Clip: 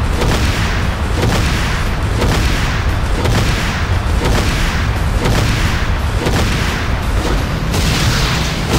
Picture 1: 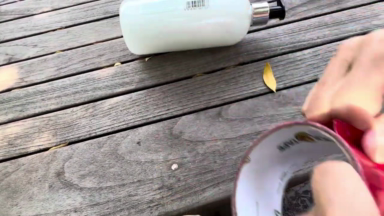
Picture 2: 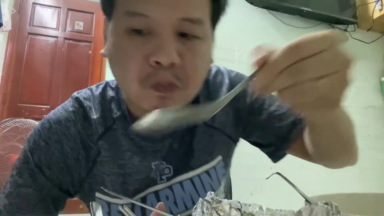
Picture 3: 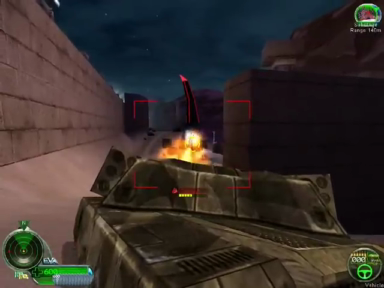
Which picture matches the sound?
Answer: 3